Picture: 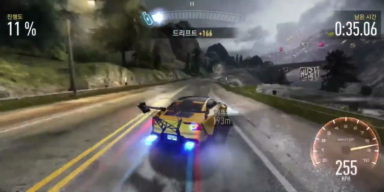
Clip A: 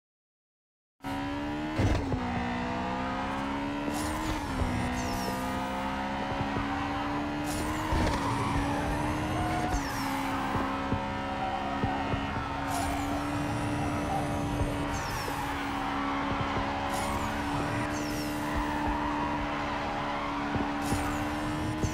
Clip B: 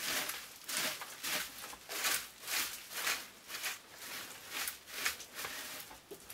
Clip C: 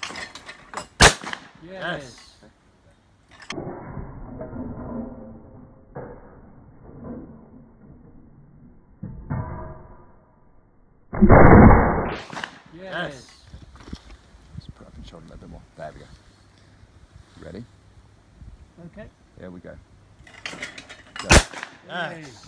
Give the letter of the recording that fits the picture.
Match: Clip A